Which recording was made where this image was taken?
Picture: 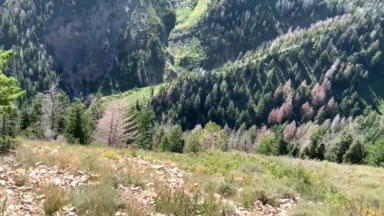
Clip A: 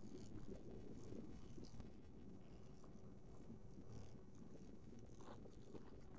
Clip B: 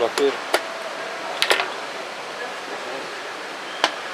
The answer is A